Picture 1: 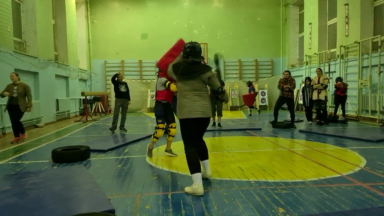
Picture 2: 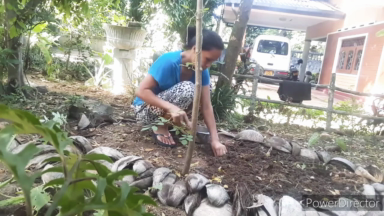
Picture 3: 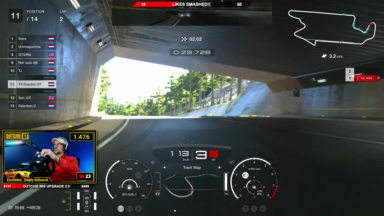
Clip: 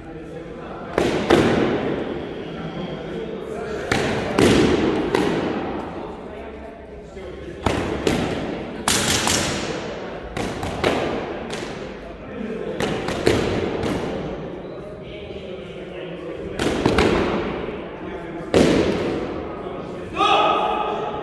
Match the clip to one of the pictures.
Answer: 1